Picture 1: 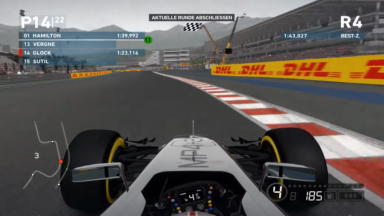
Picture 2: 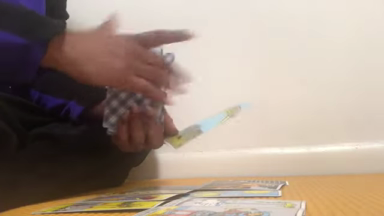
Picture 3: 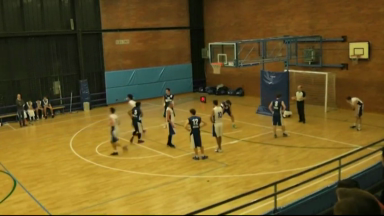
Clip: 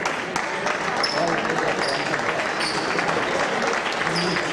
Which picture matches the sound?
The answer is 3